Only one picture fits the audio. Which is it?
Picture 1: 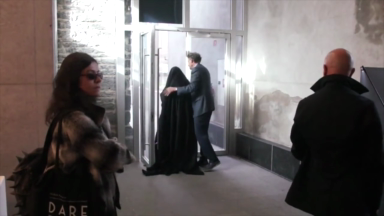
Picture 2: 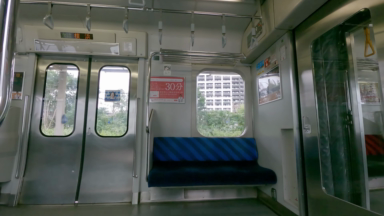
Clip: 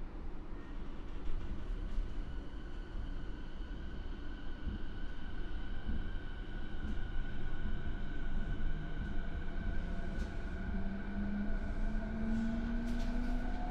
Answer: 2